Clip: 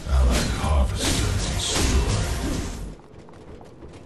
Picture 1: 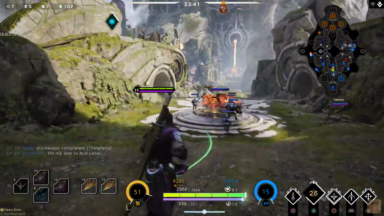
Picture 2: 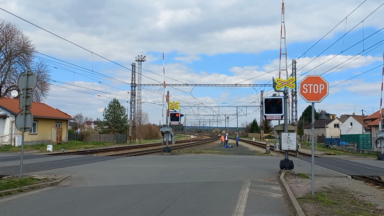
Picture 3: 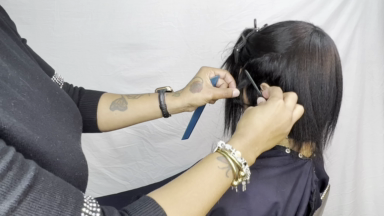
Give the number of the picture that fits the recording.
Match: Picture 1